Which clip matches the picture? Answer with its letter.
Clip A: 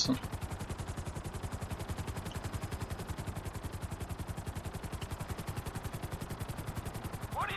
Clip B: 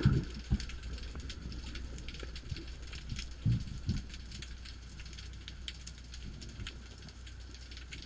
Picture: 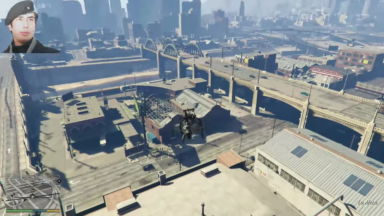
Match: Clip A